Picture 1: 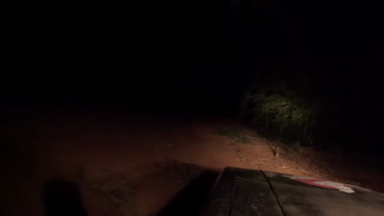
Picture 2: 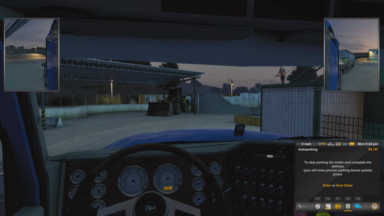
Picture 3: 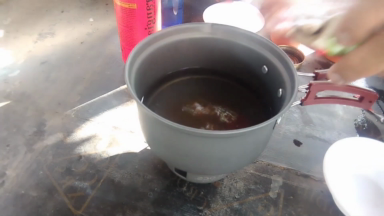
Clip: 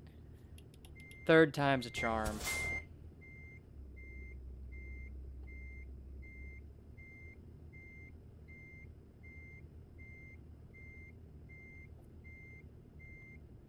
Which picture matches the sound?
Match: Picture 2